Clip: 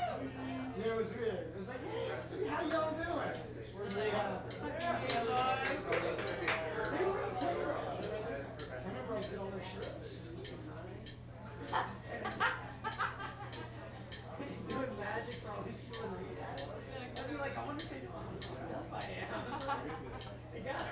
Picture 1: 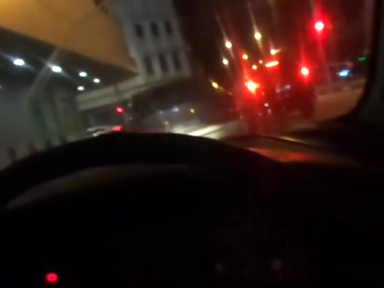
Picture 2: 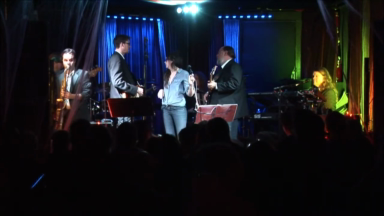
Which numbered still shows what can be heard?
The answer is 2